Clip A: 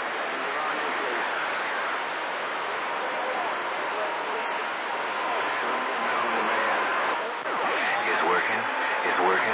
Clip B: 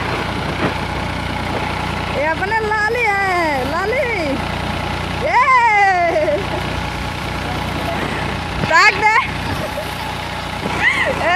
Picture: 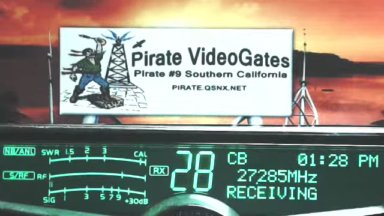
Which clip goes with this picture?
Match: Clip A